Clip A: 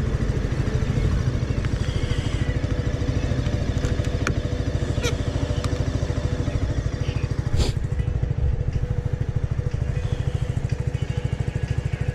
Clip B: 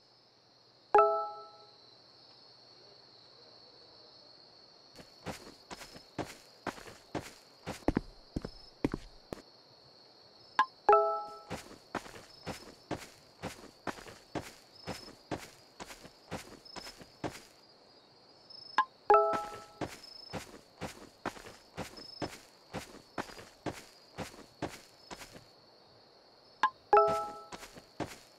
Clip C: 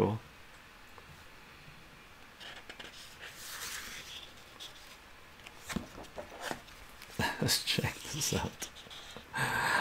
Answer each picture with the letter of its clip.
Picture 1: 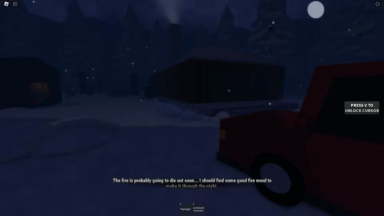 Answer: B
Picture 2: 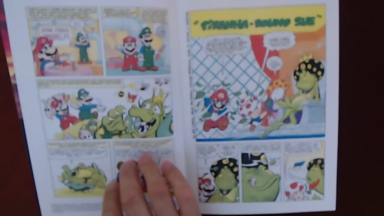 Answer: C